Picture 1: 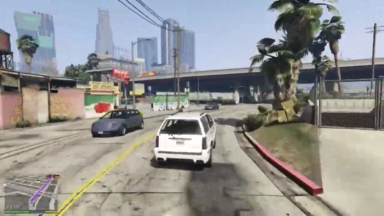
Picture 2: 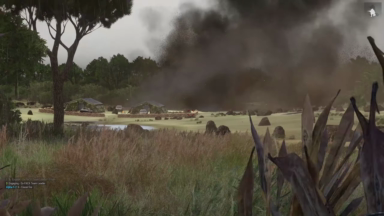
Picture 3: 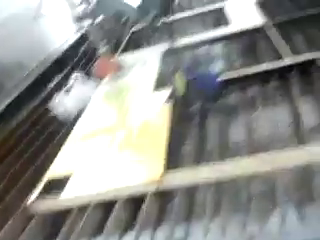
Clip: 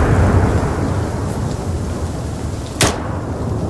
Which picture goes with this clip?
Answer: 2